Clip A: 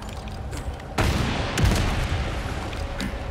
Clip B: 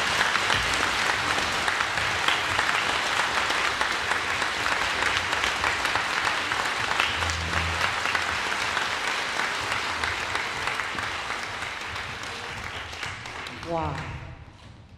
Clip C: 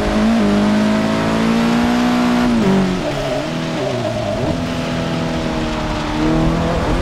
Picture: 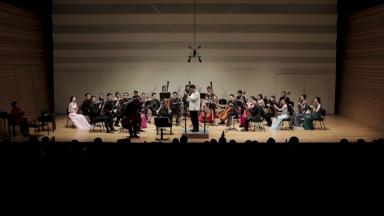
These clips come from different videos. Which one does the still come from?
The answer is B